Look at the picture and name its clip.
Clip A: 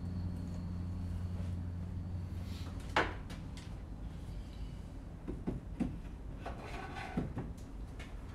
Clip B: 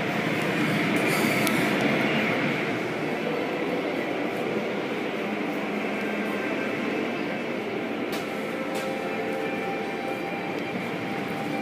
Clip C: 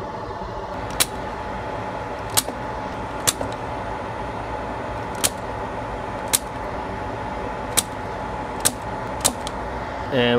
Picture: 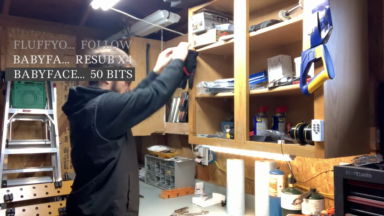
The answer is A